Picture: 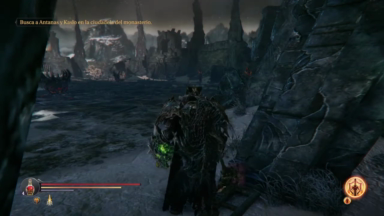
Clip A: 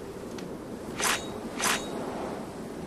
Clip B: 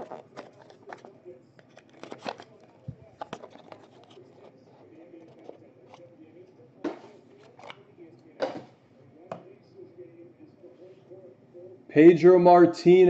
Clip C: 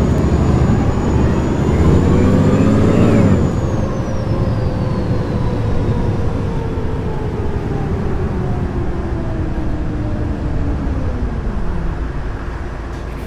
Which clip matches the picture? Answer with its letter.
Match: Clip A